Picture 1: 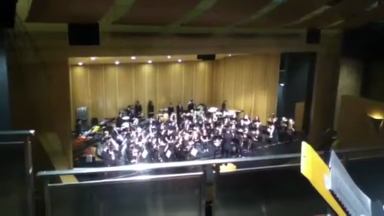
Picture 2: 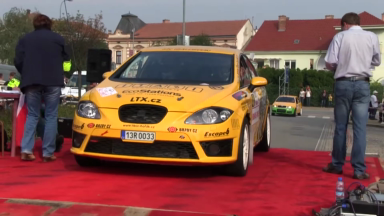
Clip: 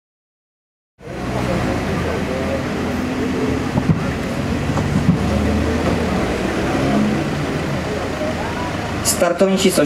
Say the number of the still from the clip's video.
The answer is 2